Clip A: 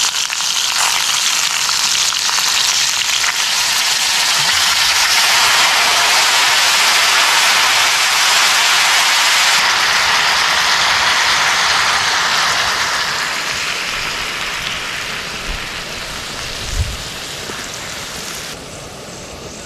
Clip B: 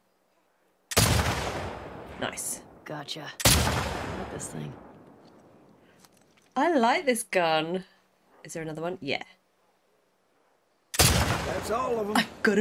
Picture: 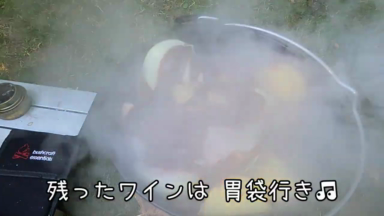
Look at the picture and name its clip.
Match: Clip A